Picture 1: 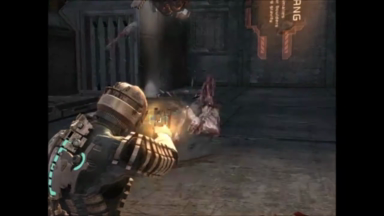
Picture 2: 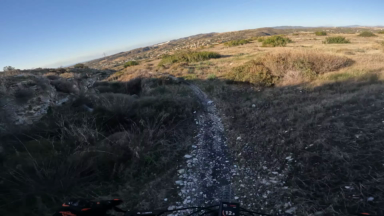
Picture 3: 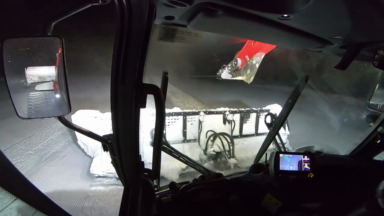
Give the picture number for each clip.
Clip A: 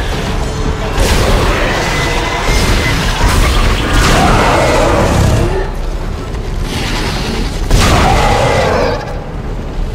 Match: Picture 1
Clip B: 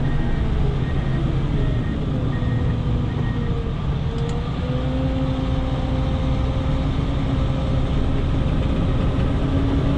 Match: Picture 3